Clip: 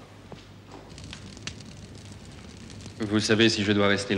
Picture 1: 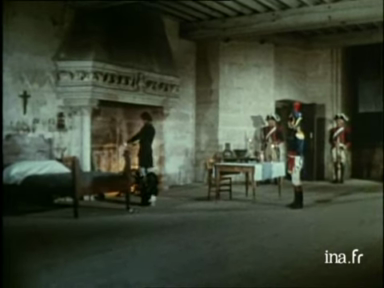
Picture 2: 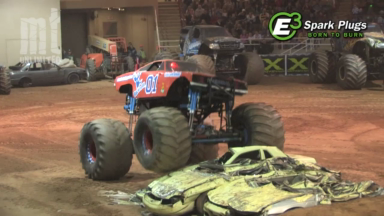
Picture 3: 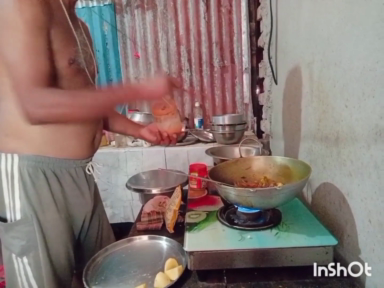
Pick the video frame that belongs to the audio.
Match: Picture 1